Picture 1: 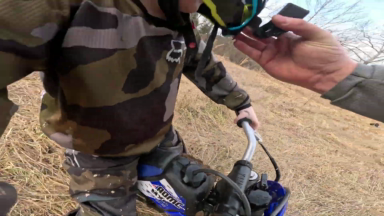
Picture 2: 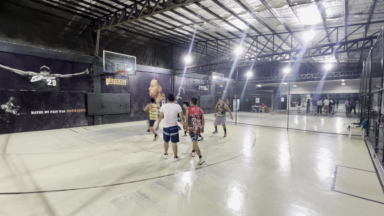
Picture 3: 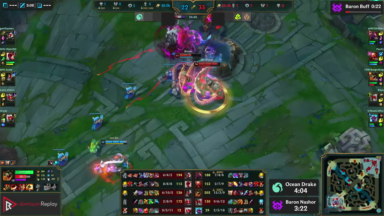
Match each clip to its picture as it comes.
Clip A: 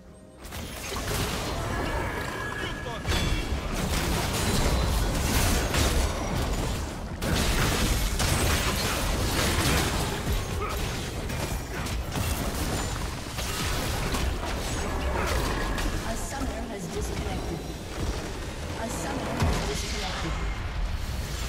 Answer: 3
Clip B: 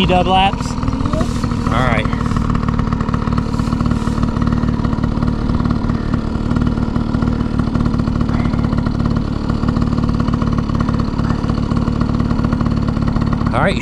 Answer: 1